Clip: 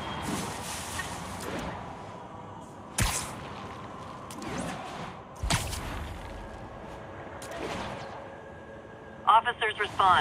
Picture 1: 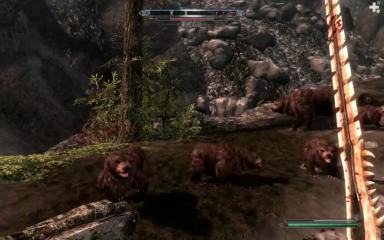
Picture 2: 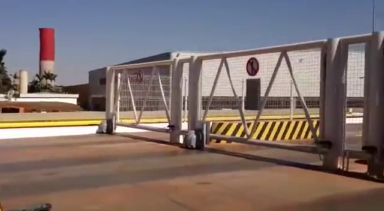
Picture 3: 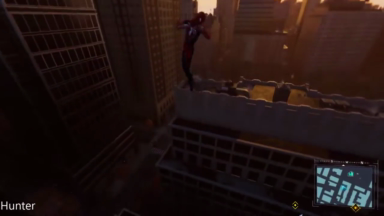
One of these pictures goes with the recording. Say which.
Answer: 3